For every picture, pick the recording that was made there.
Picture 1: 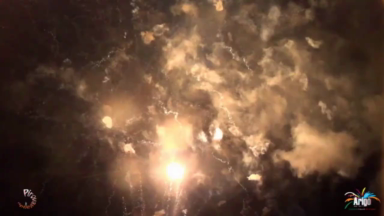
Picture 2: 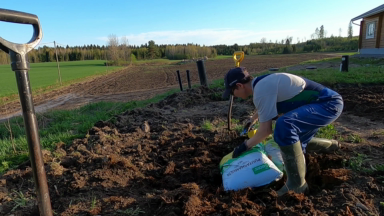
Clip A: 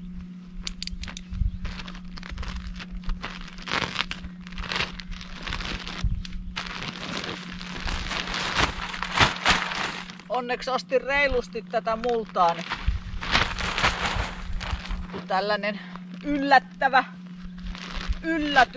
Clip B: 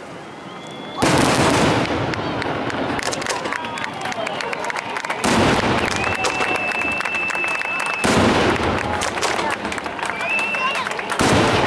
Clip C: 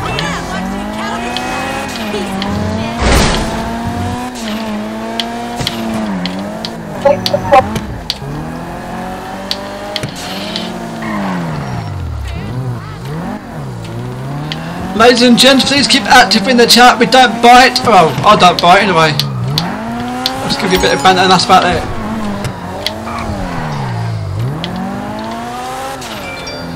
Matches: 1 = B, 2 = A